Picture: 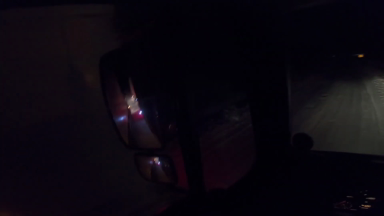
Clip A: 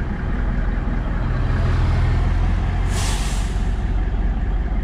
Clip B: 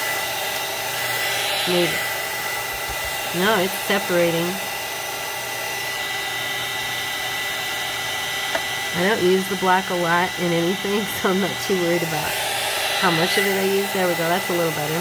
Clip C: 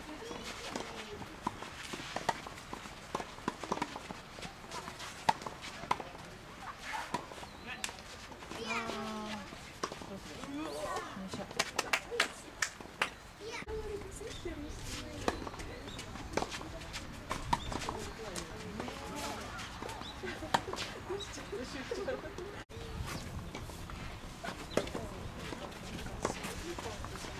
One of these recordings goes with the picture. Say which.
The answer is A